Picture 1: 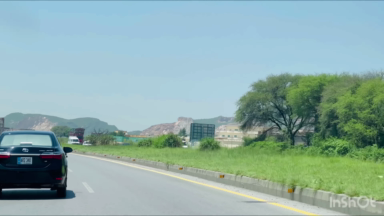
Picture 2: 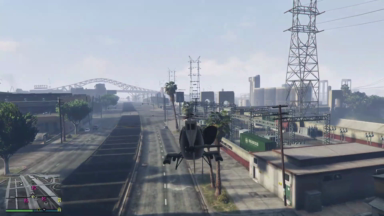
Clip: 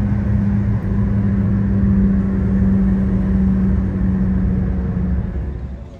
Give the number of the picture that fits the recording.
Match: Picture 1